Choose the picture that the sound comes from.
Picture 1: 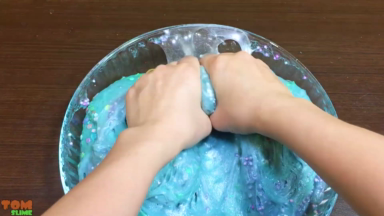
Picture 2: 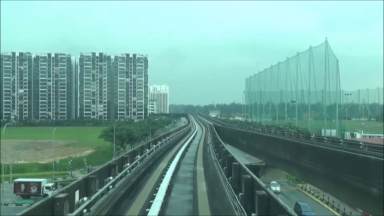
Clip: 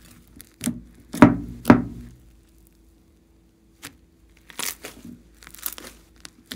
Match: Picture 1